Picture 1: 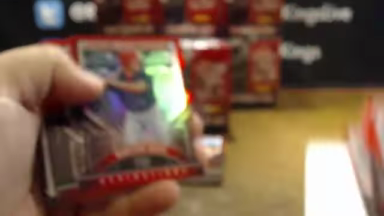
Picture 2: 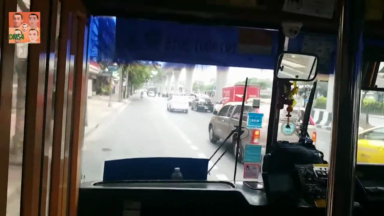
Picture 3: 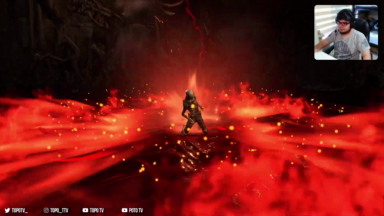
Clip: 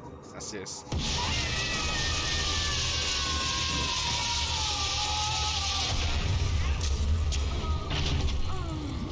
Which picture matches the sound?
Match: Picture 3